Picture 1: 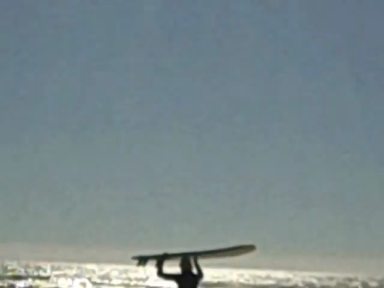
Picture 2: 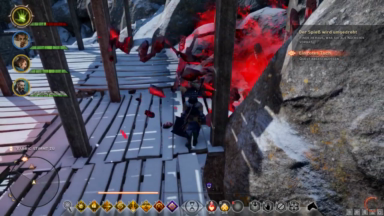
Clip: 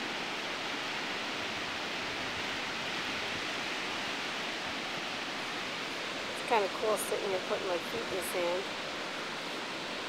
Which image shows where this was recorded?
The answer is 1